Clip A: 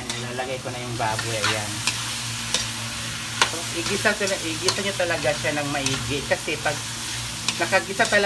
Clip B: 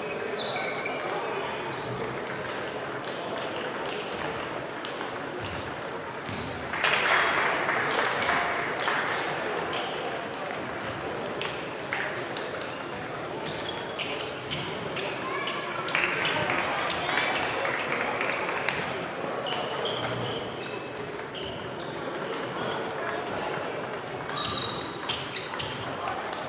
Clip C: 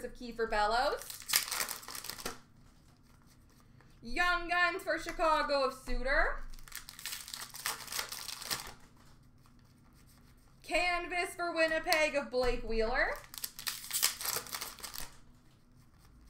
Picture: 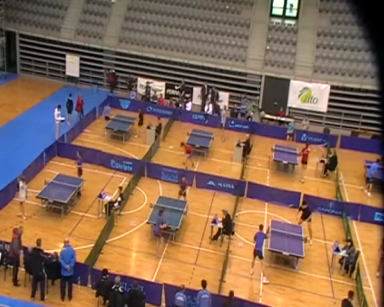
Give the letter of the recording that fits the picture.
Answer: B